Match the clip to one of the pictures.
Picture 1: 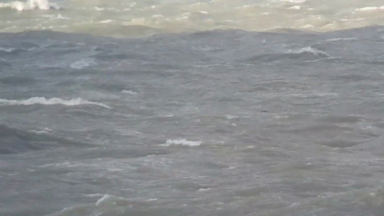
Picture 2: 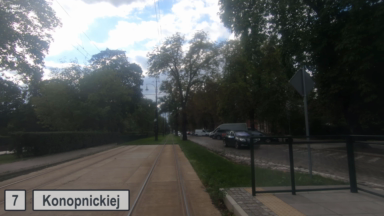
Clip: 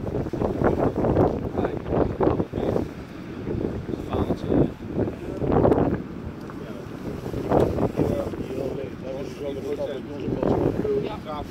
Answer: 1